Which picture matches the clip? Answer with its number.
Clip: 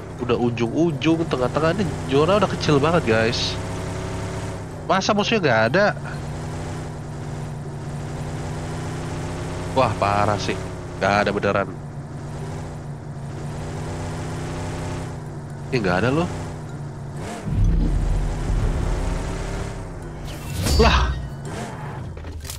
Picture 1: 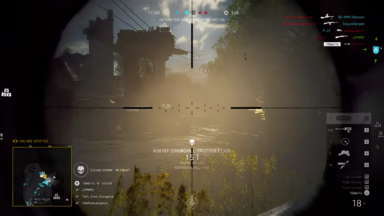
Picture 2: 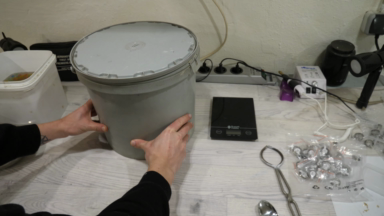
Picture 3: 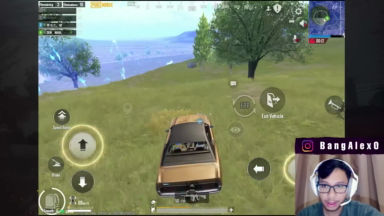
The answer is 3